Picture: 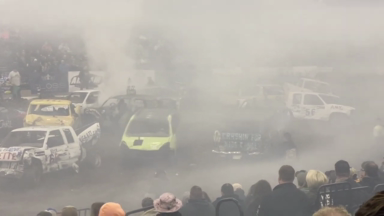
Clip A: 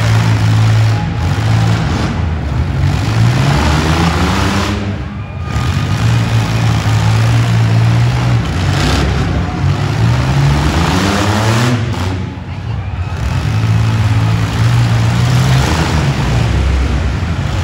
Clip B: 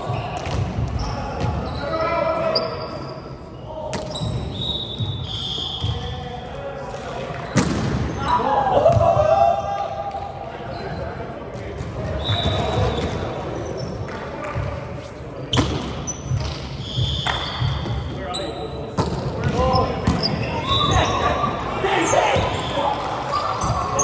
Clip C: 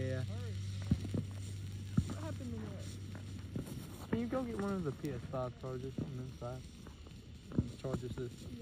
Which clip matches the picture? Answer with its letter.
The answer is A